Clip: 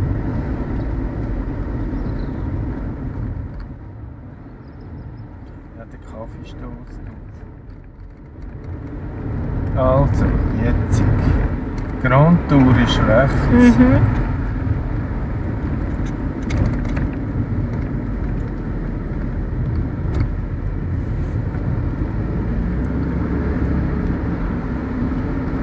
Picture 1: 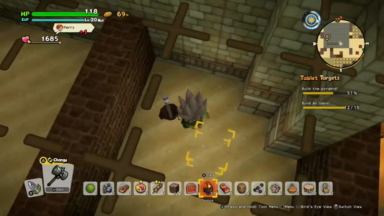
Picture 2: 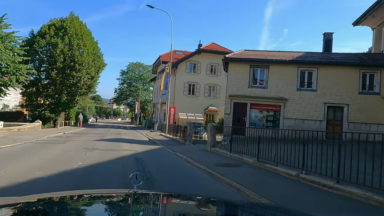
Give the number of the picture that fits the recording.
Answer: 2